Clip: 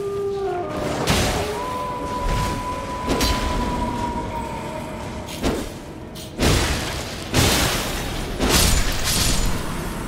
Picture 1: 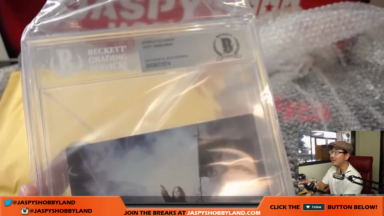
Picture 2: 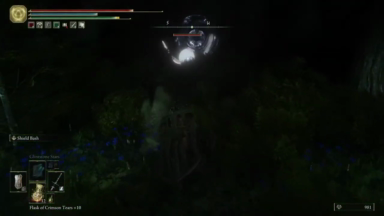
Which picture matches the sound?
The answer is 2